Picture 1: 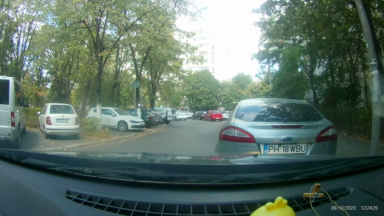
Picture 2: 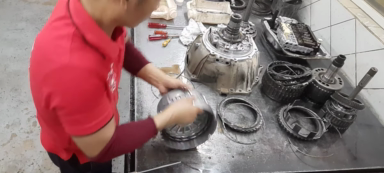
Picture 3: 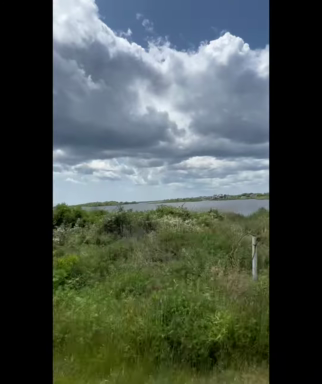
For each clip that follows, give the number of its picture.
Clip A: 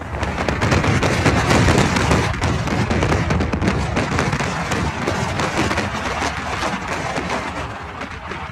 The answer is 3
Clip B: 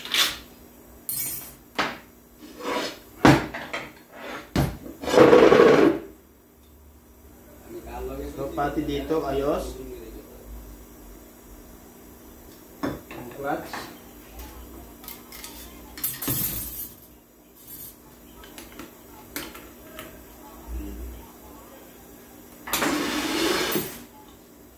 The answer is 2